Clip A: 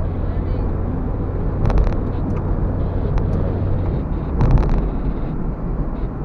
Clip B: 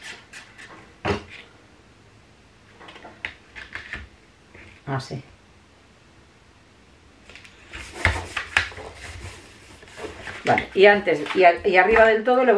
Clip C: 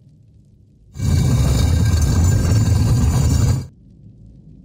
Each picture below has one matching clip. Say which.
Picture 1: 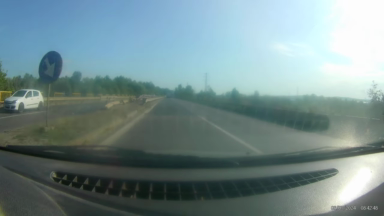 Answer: A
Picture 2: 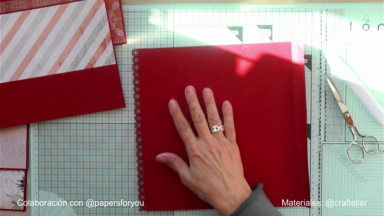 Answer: B